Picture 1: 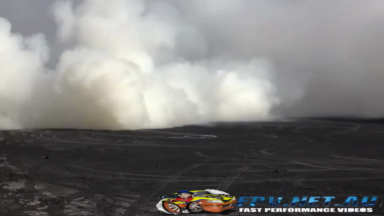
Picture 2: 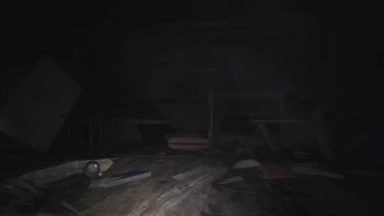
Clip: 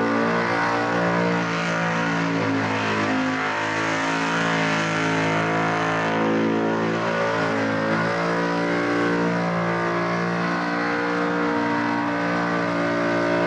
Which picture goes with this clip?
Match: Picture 1